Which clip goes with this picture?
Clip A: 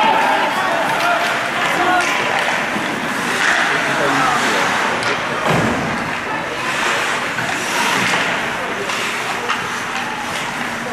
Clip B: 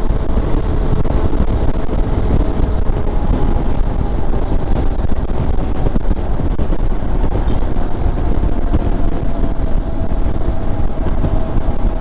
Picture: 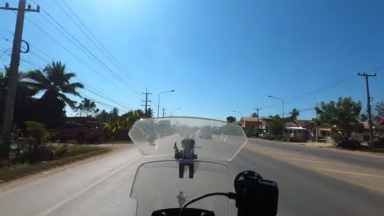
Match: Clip B